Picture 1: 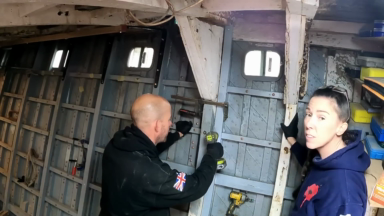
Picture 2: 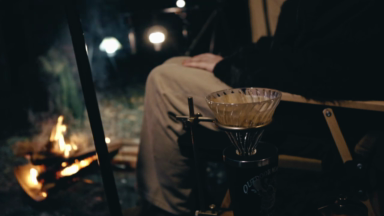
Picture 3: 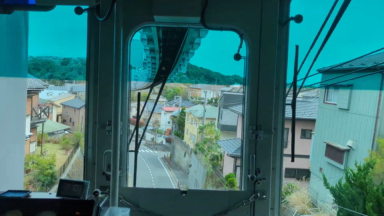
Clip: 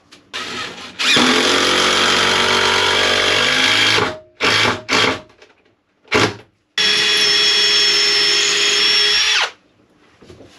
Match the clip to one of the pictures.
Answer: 1